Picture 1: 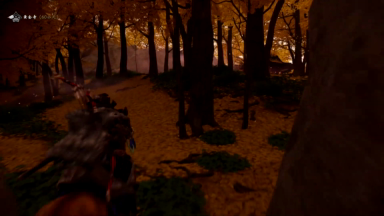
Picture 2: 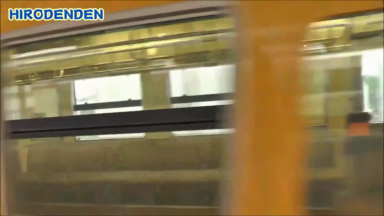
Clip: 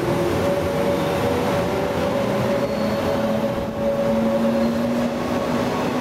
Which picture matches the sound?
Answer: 2